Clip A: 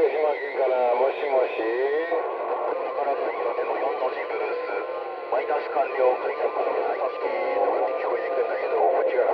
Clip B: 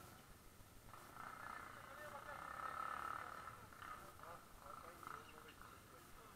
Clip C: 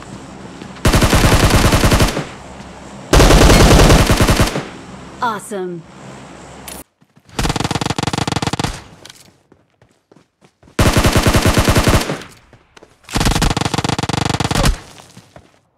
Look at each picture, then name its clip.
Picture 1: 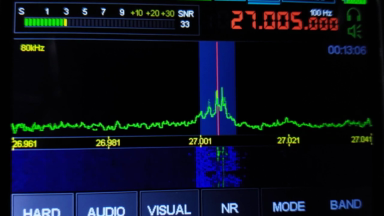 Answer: A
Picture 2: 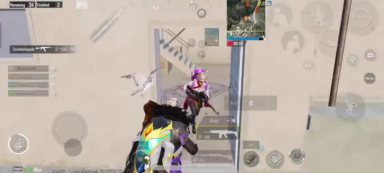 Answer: C